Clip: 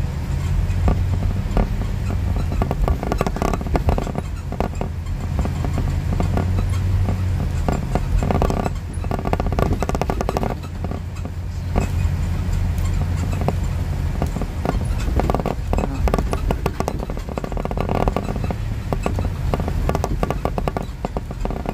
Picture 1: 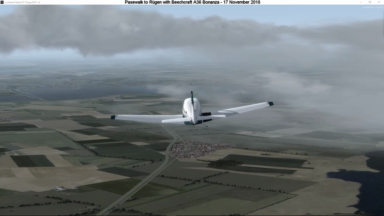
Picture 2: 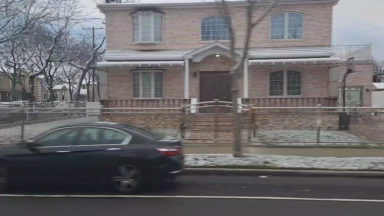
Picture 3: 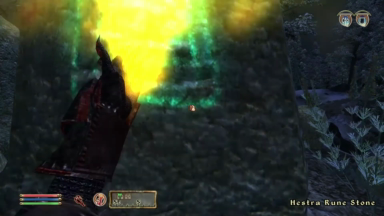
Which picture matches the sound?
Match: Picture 2